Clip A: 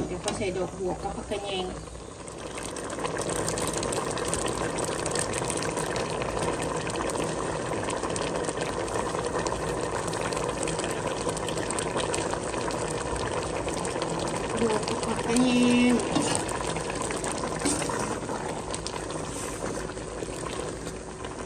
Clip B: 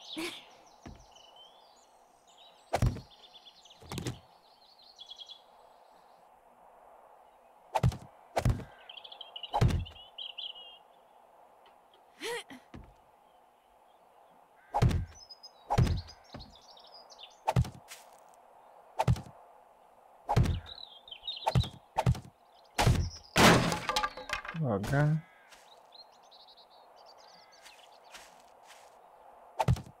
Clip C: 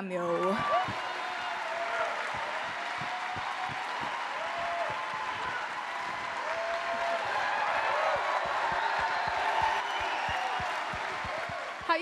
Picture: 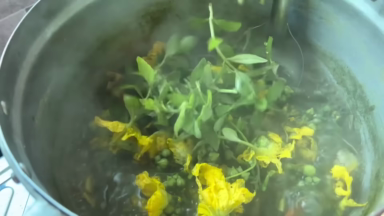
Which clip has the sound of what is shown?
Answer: A